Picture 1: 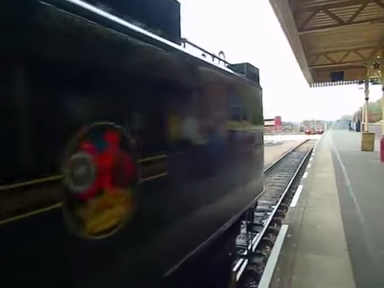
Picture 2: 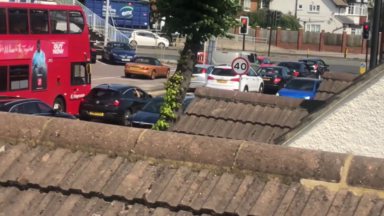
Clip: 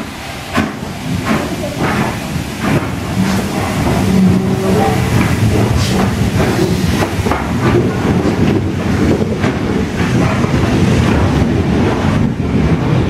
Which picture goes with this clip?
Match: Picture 1